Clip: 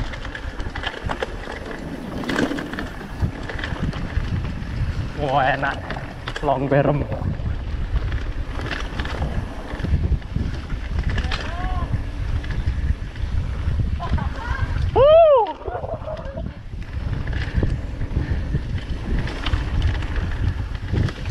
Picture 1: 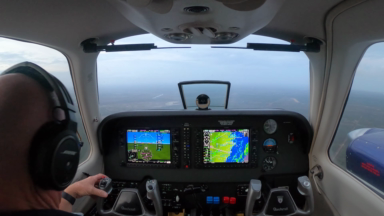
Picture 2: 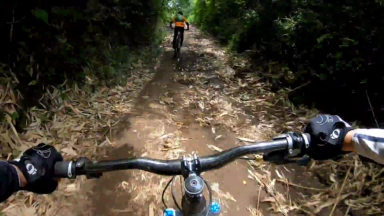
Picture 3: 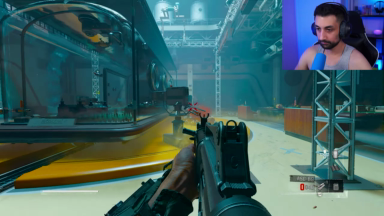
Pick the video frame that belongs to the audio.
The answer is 2